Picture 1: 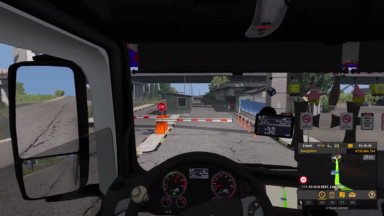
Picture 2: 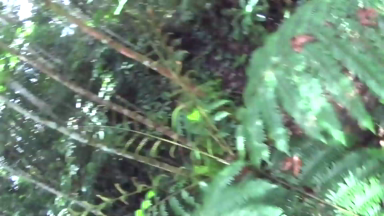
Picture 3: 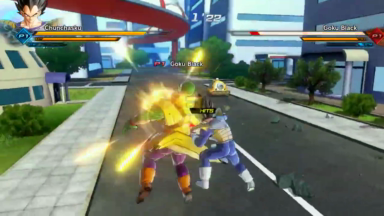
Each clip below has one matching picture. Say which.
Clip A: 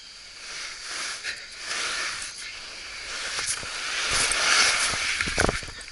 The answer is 2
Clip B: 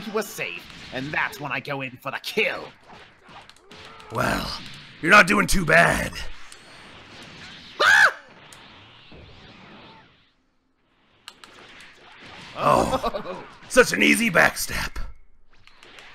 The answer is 3